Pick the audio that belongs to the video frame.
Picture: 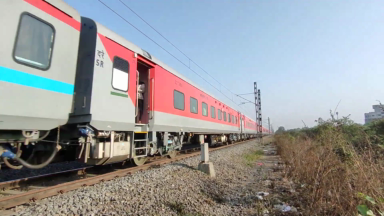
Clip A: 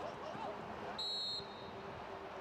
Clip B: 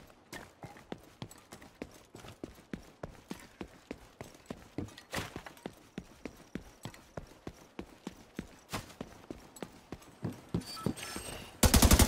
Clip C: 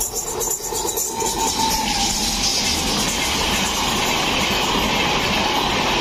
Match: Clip C